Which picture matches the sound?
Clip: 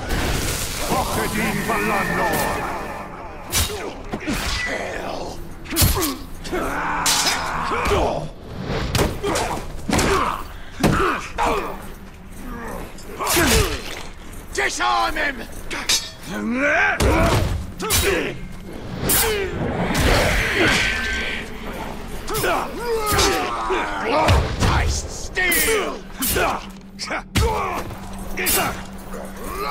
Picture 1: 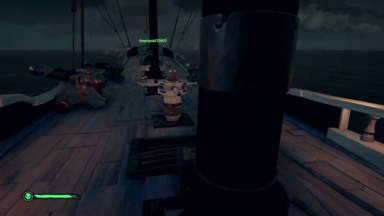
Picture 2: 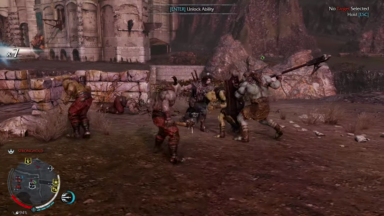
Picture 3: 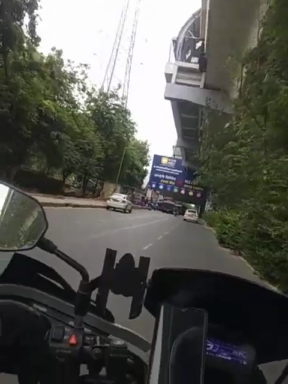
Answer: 2